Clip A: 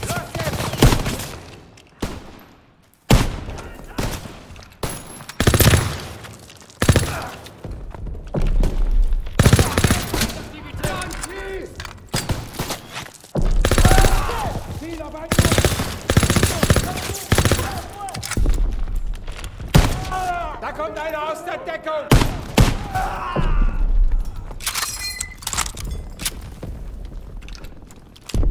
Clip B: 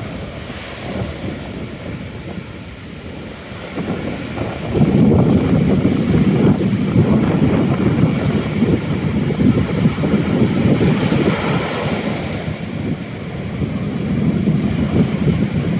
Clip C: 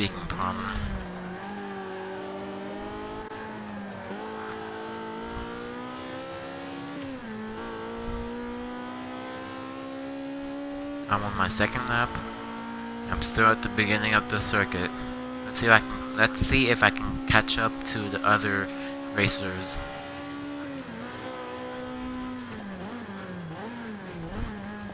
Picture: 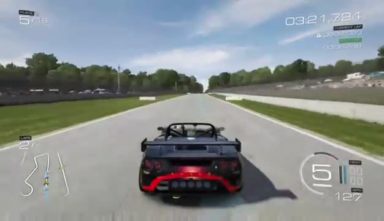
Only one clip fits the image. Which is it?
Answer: C